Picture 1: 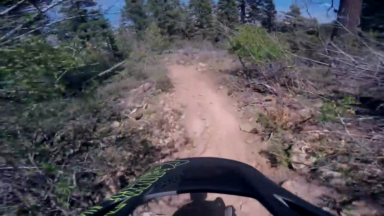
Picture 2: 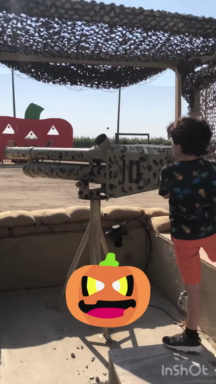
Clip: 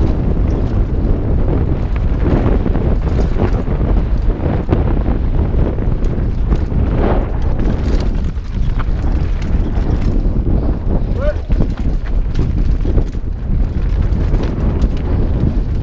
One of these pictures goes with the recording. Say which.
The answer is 1